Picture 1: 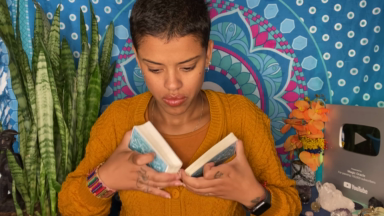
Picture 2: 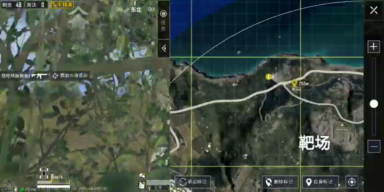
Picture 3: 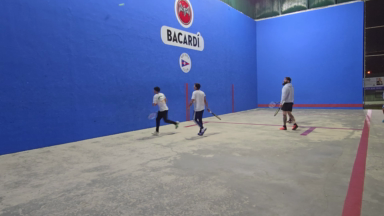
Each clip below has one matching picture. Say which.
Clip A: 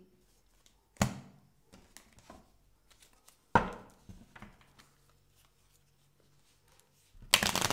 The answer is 1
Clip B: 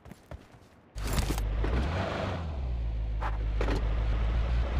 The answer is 2